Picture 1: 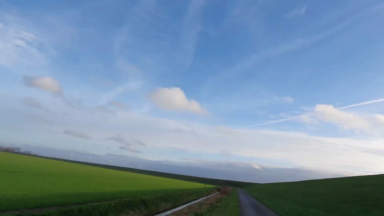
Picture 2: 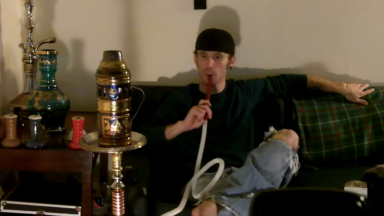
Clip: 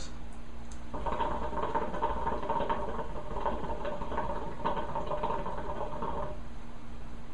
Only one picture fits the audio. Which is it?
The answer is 2